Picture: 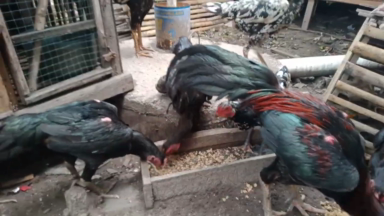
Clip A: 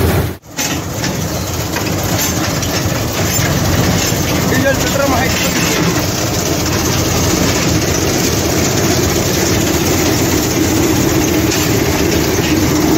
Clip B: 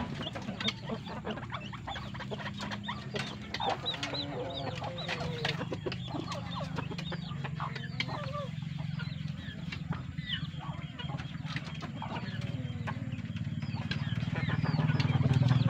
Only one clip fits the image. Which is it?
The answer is B